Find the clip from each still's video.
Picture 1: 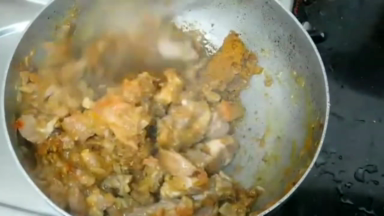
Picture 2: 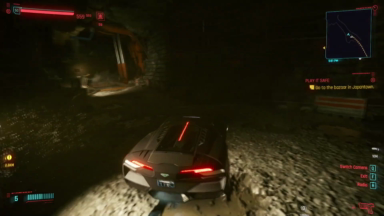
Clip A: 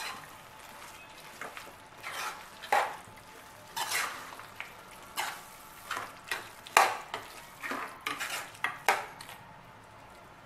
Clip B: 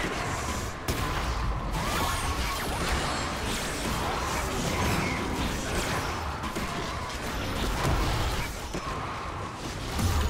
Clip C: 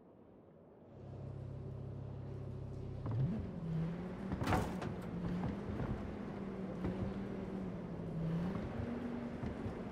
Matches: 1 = A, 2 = C